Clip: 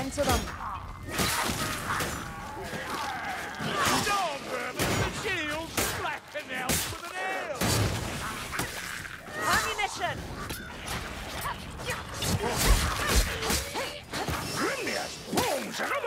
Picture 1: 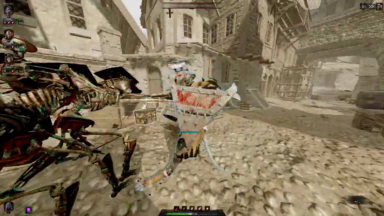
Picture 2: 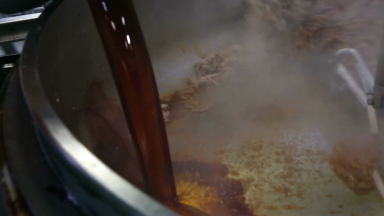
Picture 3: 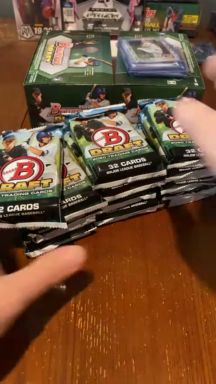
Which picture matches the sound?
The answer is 1